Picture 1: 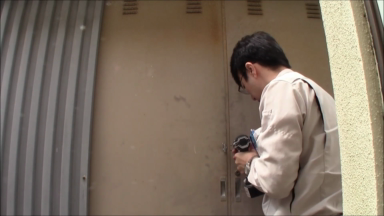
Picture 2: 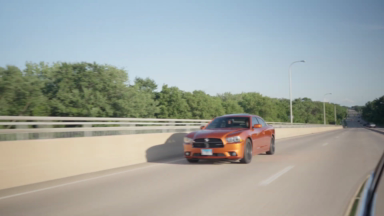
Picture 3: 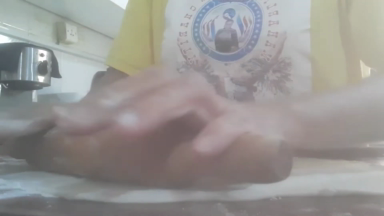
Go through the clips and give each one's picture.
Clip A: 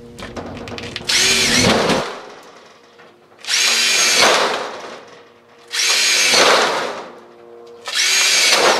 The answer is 1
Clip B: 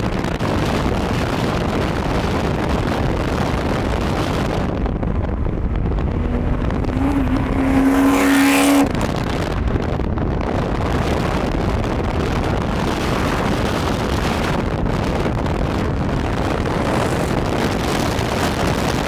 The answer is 2